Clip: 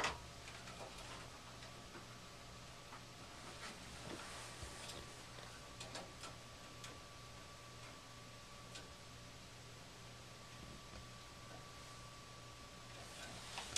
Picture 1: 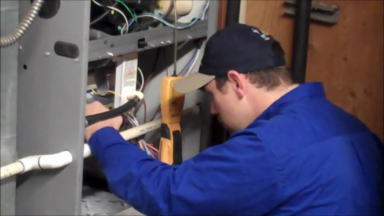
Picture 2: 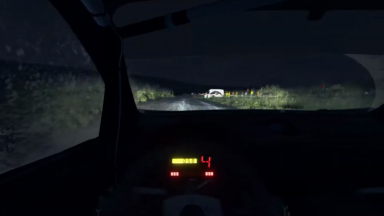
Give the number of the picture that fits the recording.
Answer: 1